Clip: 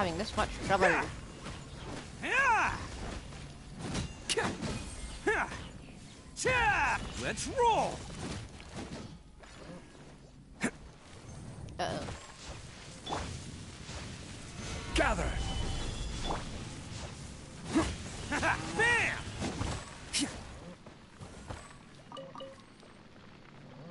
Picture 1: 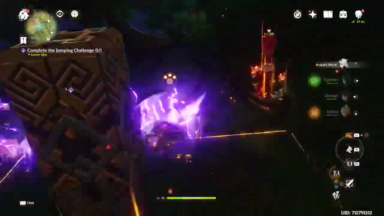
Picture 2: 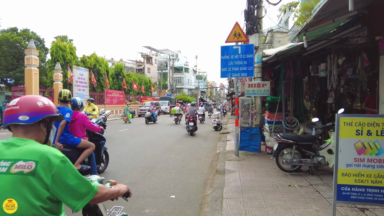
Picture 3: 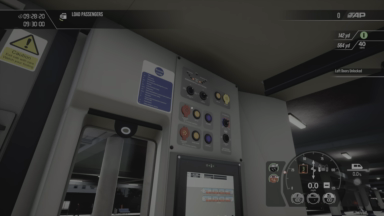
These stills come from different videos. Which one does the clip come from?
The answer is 1